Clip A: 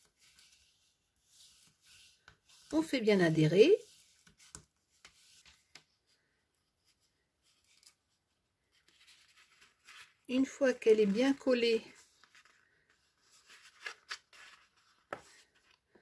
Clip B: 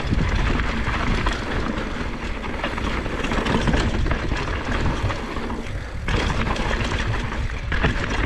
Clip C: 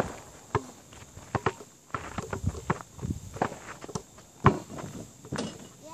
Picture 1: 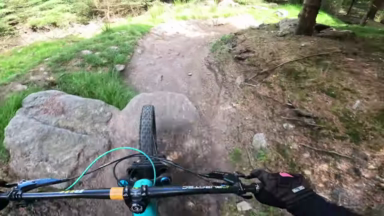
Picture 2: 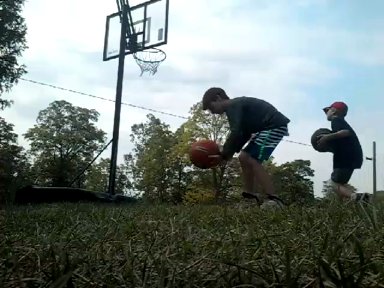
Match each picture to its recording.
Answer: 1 B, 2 C